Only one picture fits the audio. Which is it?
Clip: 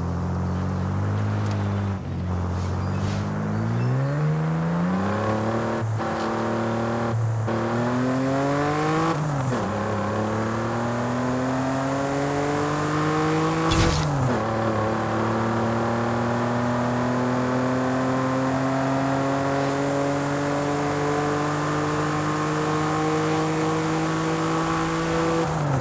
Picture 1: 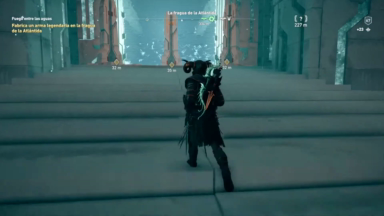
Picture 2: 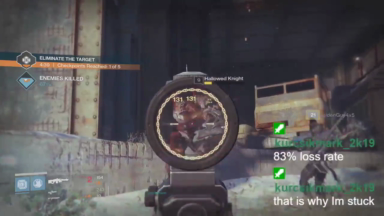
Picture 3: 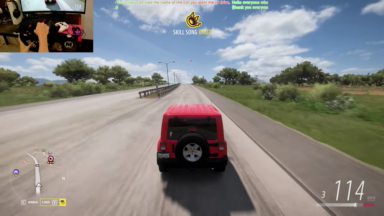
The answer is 3